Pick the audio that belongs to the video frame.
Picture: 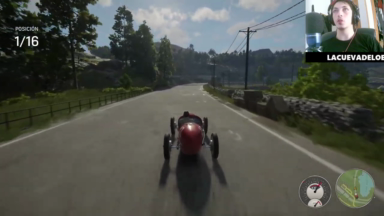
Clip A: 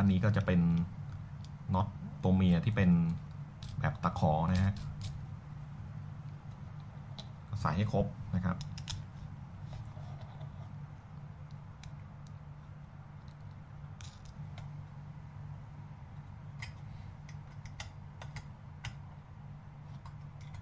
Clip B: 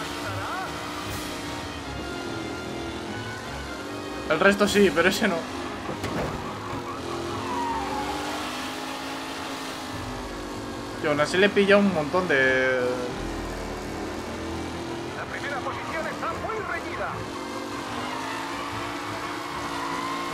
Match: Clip B